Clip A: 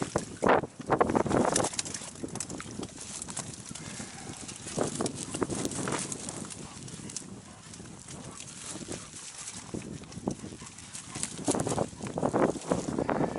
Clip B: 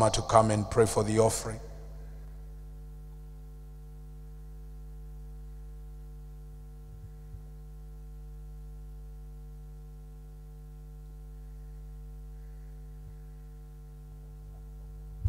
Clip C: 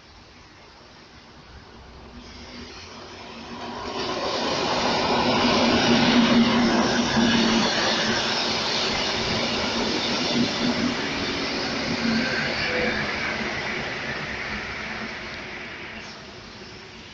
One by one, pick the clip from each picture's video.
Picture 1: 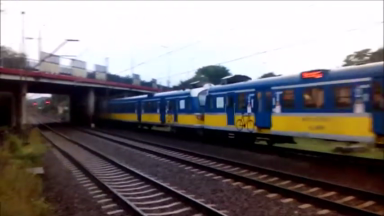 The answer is C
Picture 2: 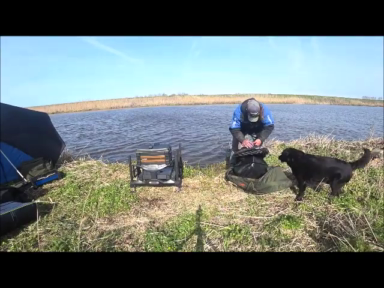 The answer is A